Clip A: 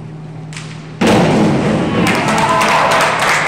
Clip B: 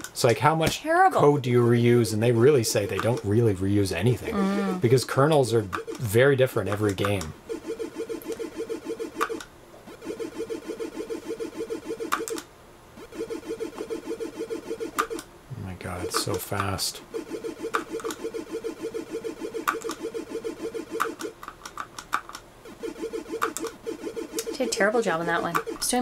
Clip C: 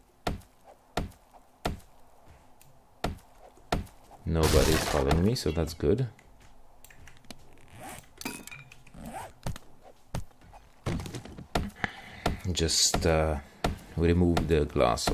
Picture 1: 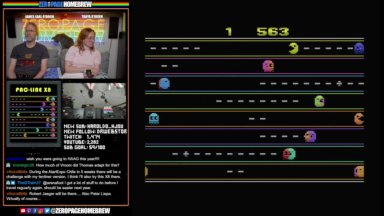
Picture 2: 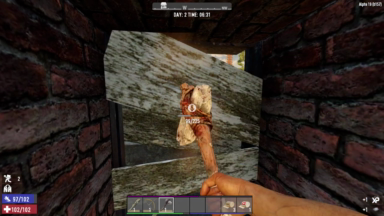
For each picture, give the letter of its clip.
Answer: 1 B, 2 C